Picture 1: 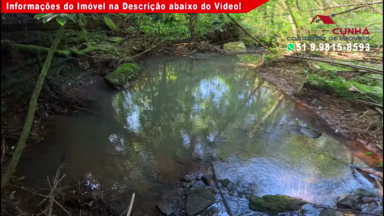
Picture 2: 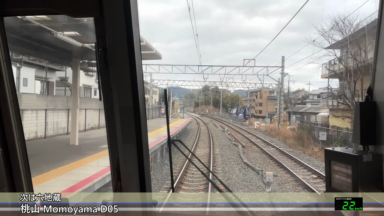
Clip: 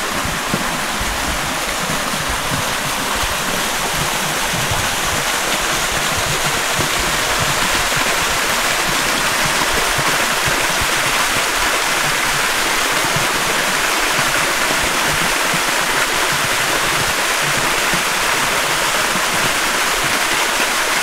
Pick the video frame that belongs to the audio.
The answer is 1